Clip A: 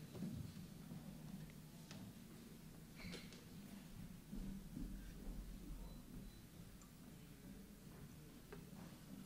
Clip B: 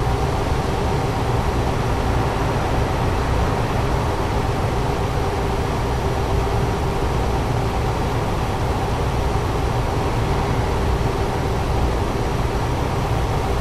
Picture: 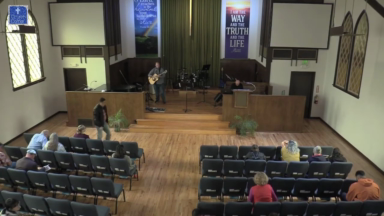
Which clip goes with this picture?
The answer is A